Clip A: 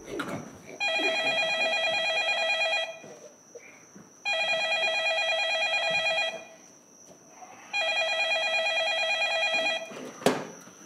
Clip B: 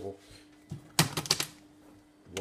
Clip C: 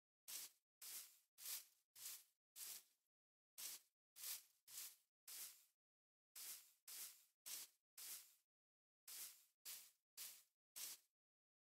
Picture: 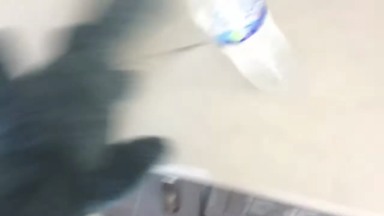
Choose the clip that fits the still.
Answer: B